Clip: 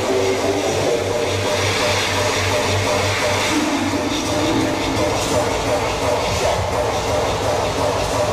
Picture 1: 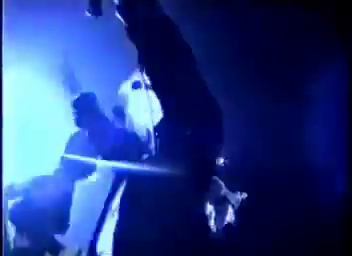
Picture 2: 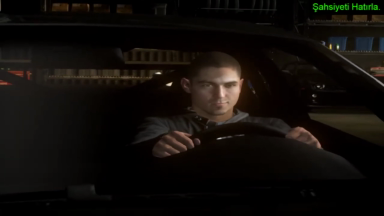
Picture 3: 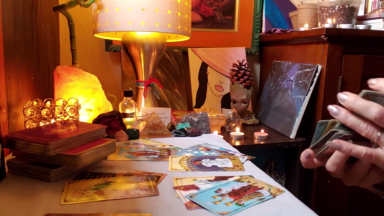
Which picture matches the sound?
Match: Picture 1